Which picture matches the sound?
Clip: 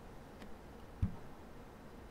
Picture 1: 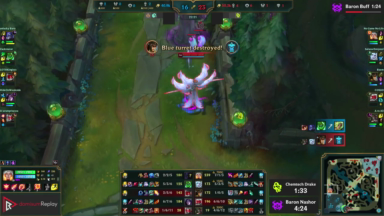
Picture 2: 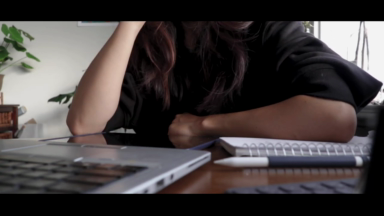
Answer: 2